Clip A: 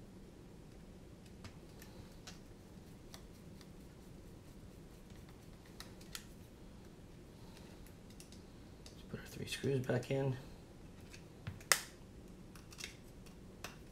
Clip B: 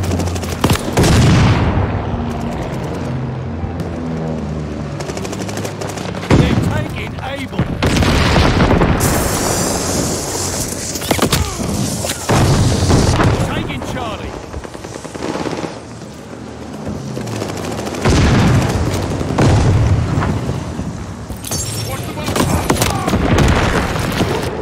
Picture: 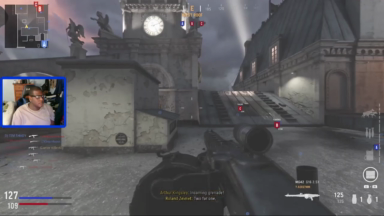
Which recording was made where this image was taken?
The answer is B